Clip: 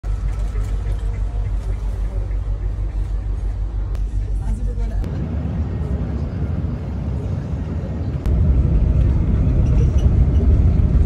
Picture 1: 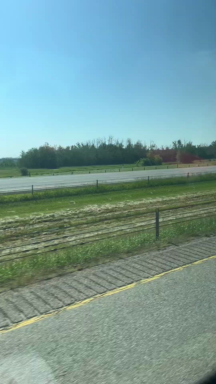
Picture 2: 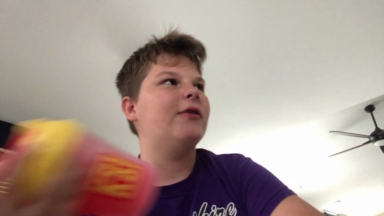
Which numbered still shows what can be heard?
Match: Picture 1